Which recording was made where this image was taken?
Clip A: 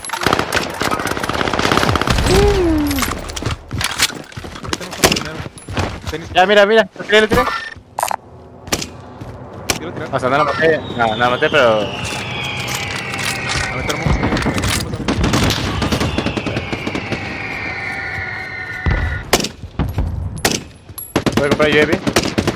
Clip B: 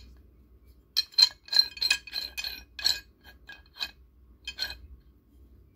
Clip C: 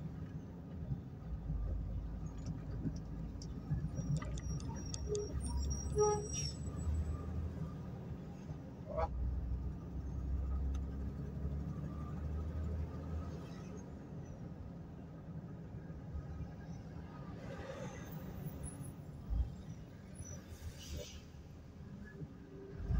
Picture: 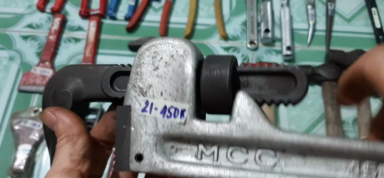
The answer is B